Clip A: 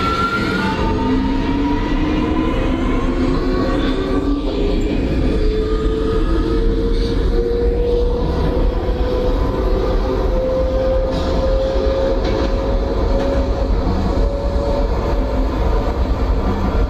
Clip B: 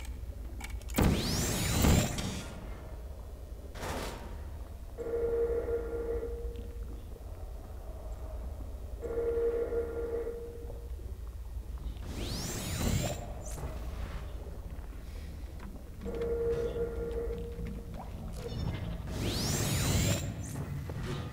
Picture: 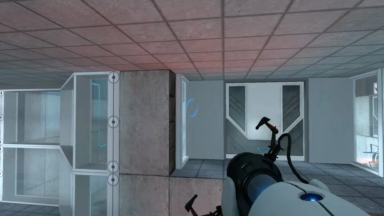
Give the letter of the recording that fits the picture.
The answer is B